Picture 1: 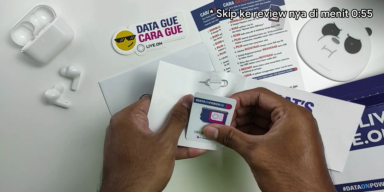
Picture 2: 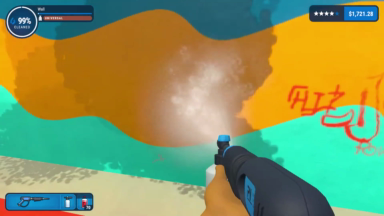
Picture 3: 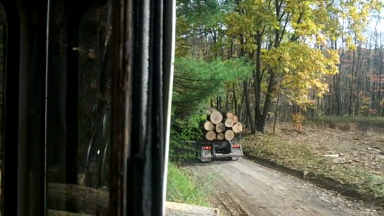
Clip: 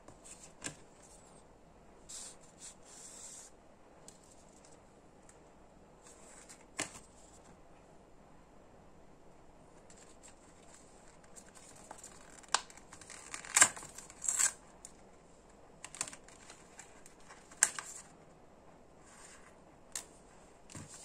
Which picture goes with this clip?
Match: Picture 1